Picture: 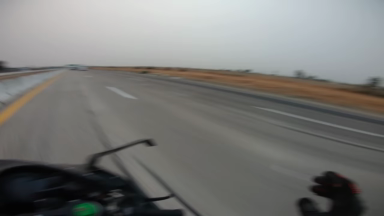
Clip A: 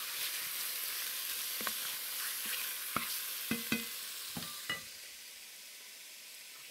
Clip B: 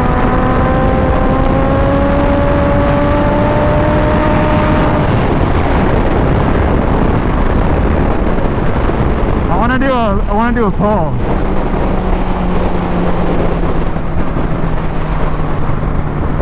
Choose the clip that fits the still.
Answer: B